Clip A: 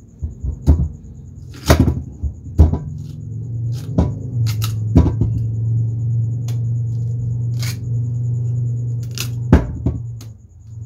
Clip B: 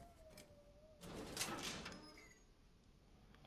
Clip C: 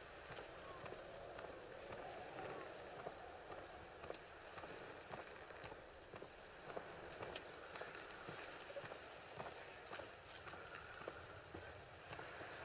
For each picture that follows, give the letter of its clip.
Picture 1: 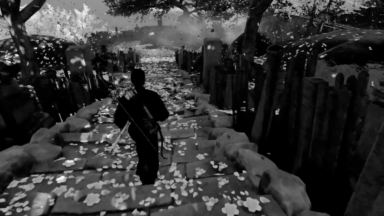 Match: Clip C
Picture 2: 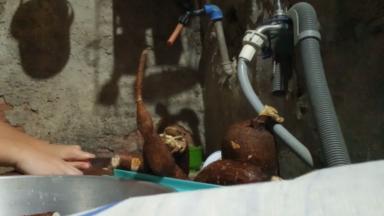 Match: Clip A